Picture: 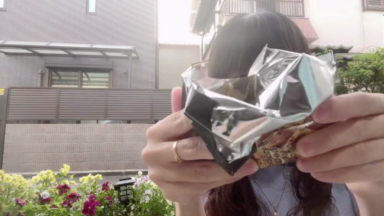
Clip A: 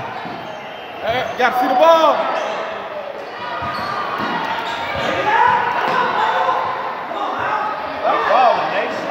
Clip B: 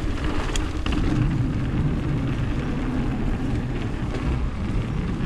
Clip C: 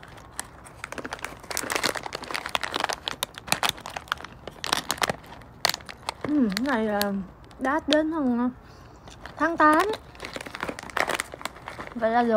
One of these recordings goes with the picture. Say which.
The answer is C